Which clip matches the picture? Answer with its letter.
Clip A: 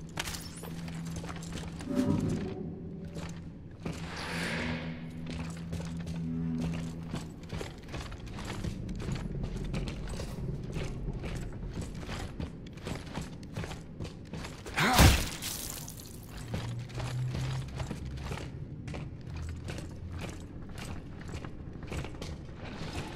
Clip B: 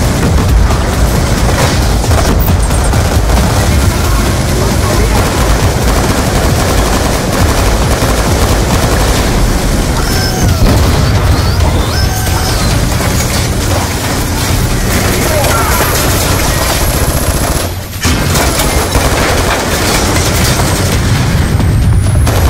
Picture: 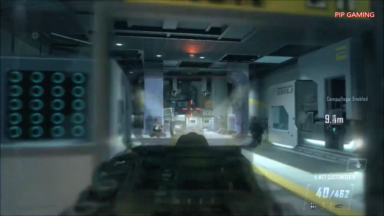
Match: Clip B